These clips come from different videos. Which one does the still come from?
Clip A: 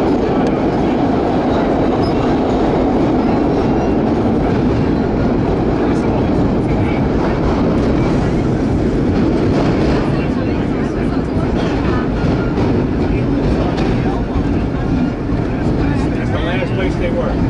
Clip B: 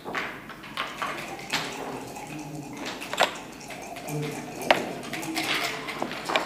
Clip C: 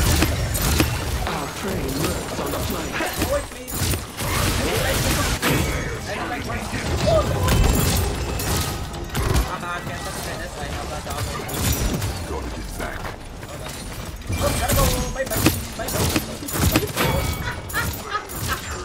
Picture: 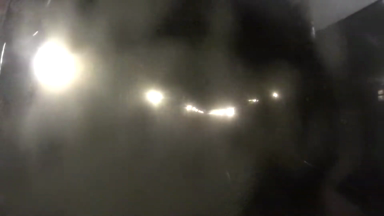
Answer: A